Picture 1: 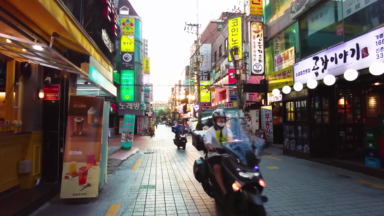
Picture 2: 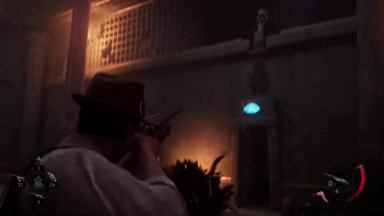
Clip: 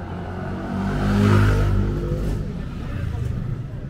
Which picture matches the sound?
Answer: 1